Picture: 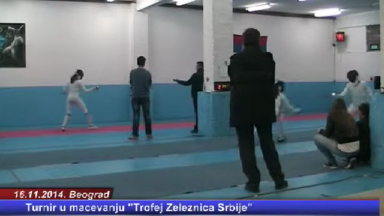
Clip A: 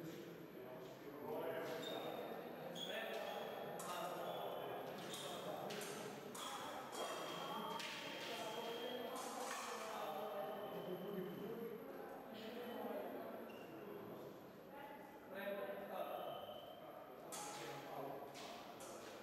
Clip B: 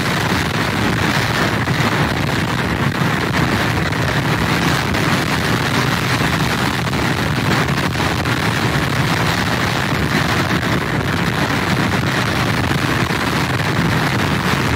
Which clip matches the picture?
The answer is A